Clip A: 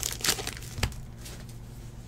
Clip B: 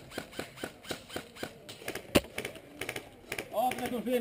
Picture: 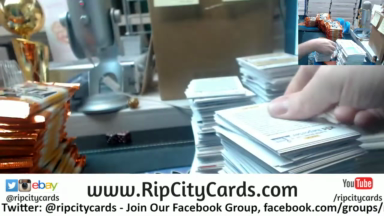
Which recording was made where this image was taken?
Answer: A